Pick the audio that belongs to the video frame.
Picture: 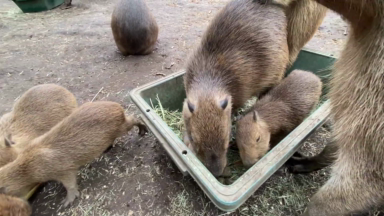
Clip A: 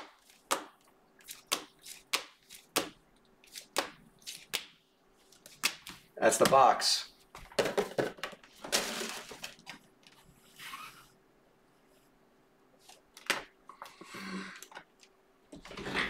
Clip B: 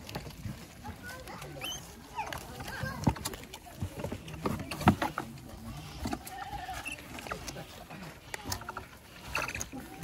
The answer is B